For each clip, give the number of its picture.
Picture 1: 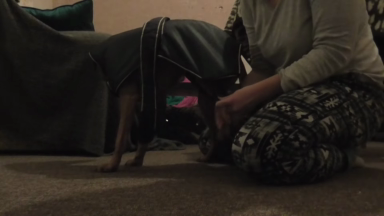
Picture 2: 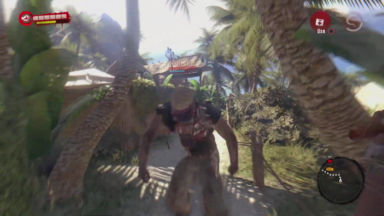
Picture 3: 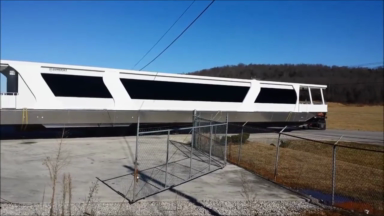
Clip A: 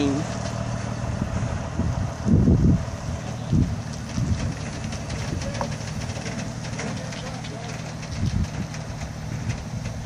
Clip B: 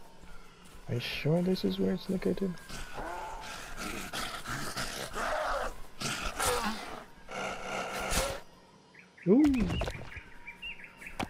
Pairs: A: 3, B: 2